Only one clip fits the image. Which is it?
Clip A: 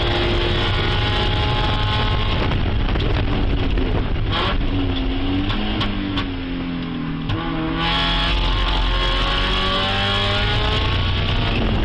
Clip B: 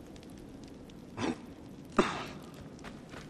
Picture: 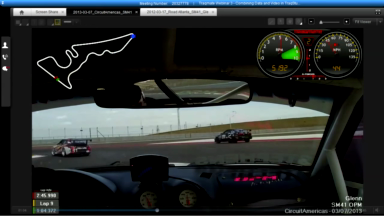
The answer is A